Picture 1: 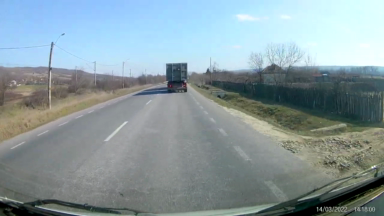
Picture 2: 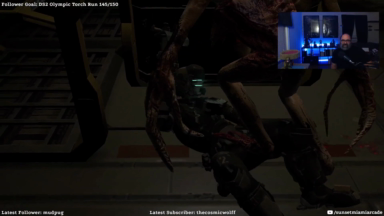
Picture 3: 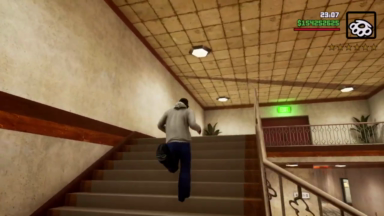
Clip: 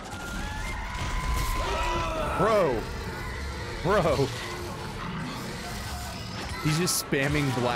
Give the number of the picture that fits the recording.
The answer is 2